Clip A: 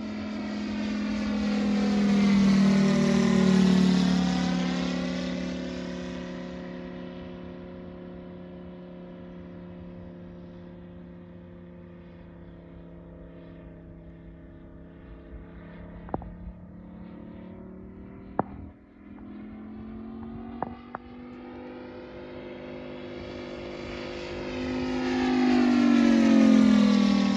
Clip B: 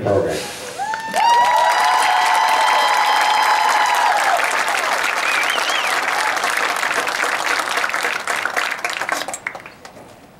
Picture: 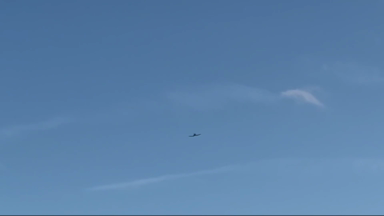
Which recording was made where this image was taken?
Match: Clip A